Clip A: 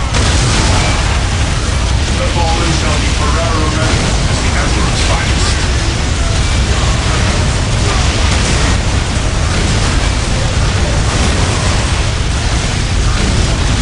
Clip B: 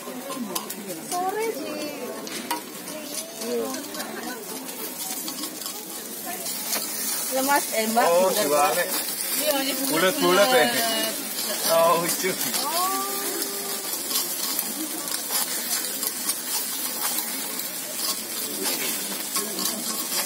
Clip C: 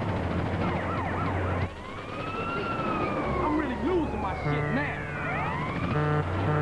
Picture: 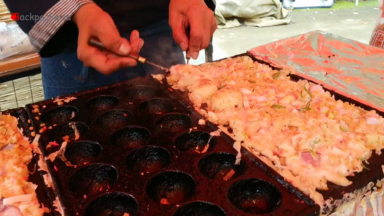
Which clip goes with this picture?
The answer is B